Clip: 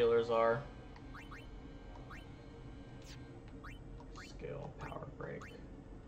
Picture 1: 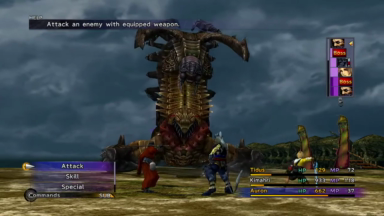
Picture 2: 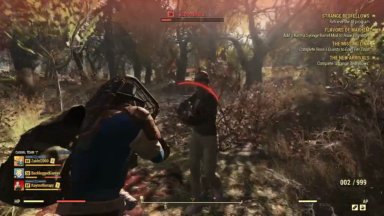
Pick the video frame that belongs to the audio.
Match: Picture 1